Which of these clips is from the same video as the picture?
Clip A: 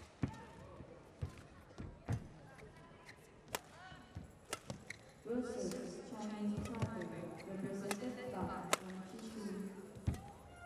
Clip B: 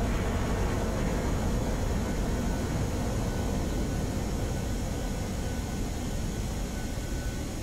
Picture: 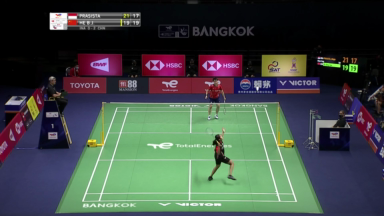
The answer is A